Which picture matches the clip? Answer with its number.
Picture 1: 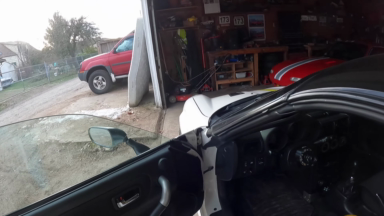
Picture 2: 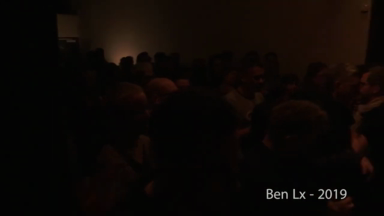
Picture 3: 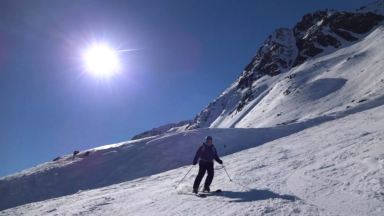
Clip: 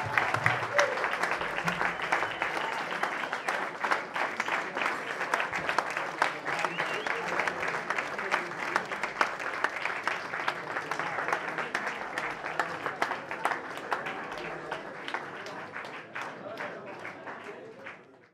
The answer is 2